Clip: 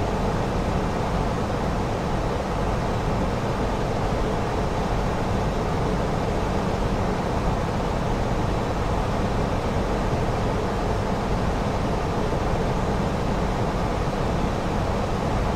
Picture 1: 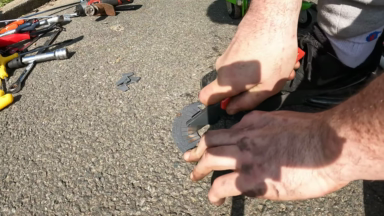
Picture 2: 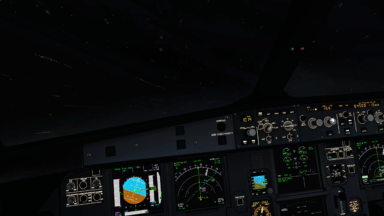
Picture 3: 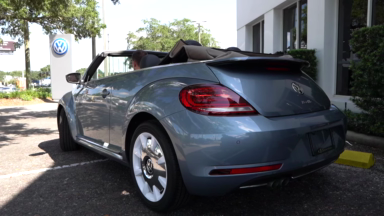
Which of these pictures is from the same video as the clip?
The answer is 2